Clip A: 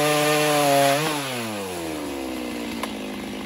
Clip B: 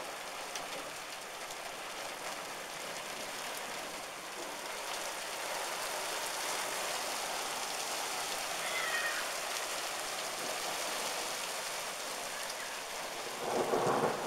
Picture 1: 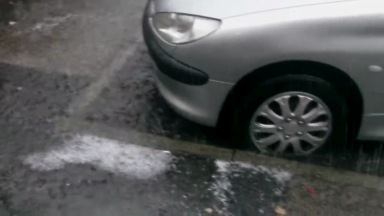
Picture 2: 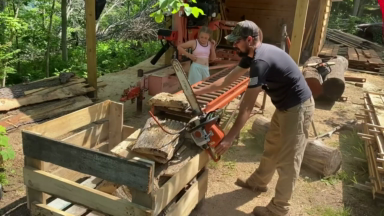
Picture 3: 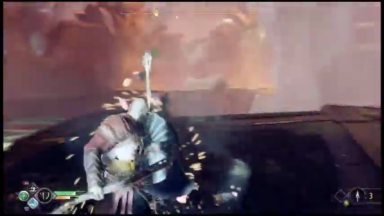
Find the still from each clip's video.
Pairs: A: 2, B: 1